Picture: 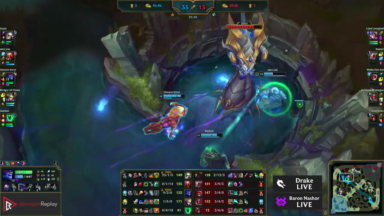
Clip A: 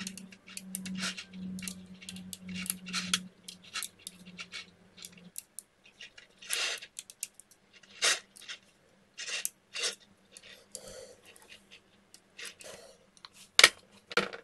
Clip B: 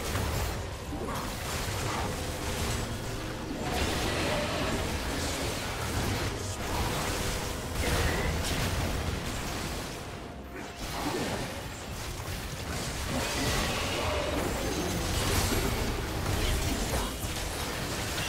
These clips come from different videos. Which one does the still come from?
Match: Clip B